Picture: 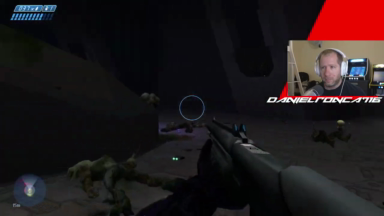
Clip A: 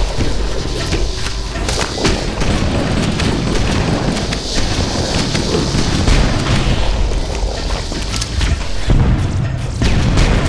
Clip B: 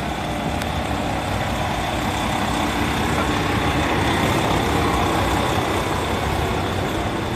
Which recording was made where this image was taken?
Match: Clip A